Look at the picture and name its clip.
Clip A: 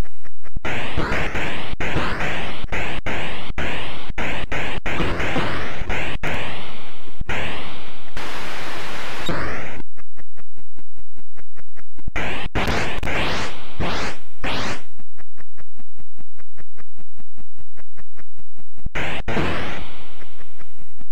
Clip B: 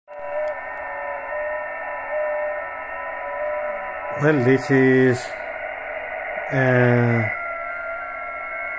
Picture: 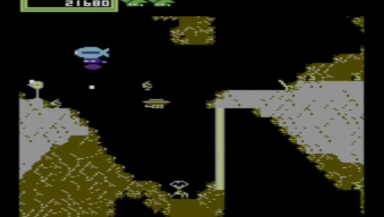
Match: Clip A